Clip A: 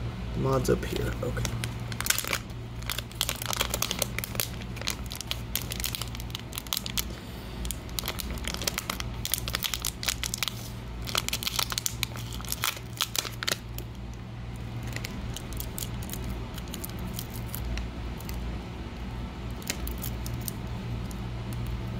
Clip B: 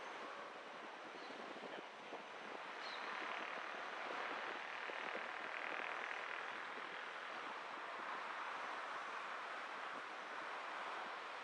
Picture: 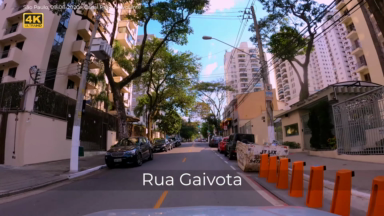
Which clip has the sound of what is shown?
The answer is B